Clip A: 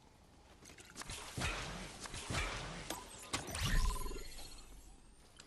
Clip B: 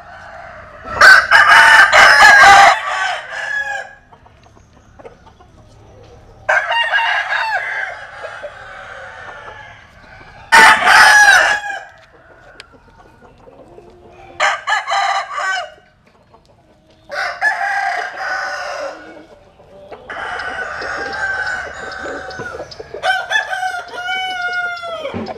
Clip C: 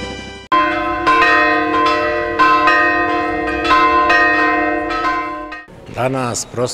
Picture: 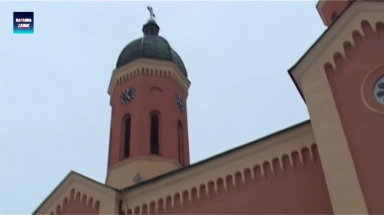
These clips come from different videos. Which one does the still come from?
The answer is C